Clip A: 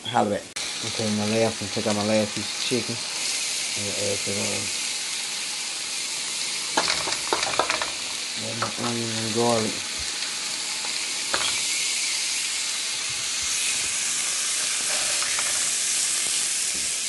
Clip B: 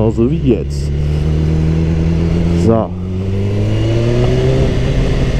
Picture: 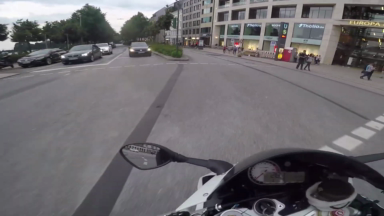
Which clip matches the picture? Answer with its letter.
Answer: B